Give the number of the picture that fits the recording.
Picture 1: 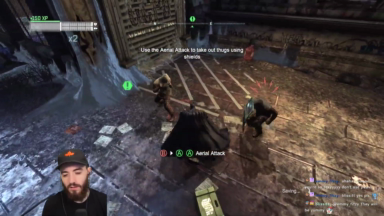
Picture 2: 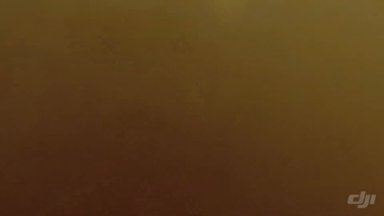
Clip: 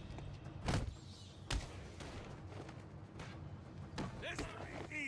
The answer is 1